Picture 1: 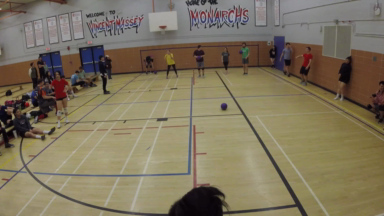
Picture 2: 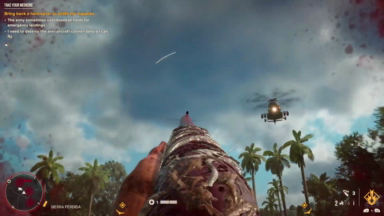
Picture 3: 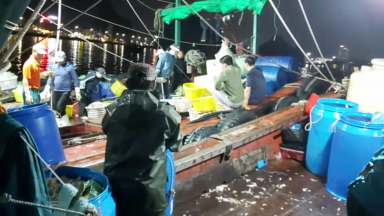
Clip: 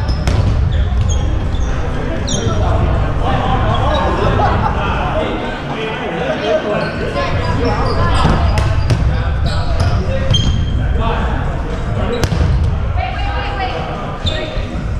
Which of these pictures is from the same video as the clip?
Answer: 1